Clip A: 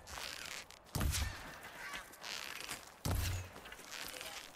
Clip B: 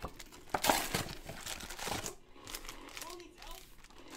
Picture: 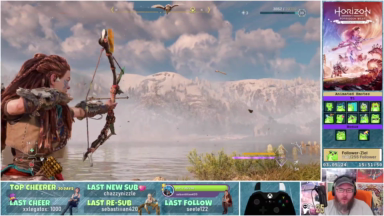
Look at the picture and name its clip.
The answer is A